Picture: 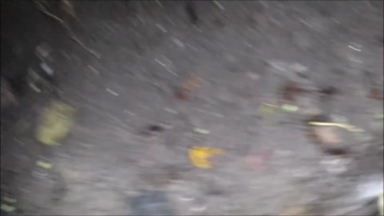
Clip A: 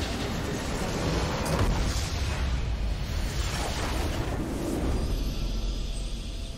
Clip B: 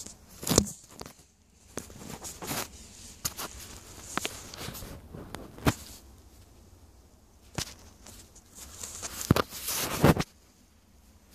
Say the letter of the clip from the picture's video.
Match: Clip B